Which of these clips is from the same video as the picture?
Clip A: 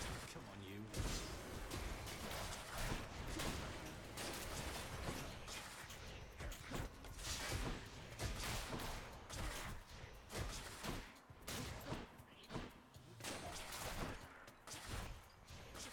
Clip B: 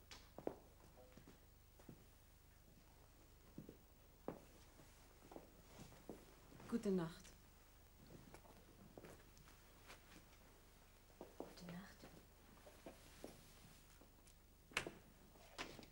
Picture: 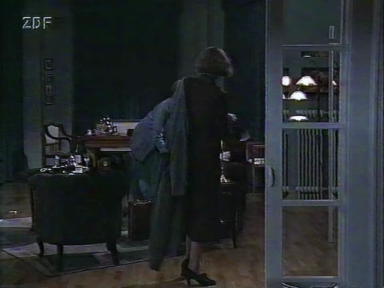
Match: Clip B